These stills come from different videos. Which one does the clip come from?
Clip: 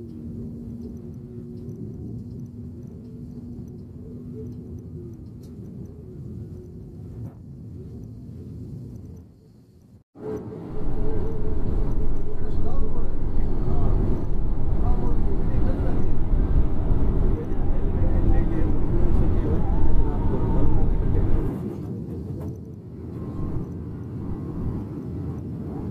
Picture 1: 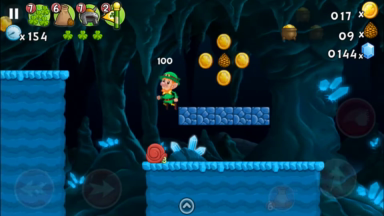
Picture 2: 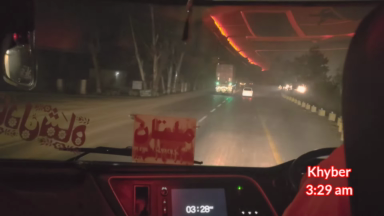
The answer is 2